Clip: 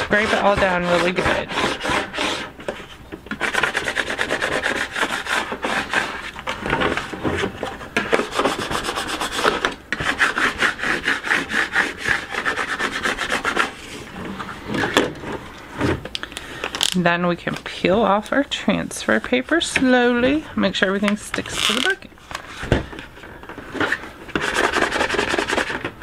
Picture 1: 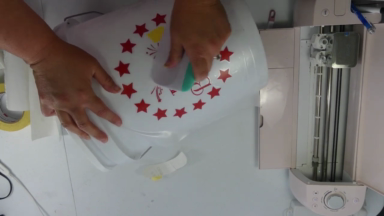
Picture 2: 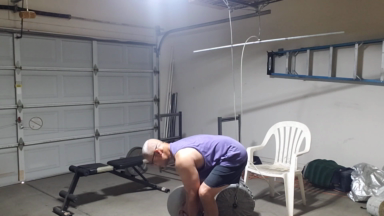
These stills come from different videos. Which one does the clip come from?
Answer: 1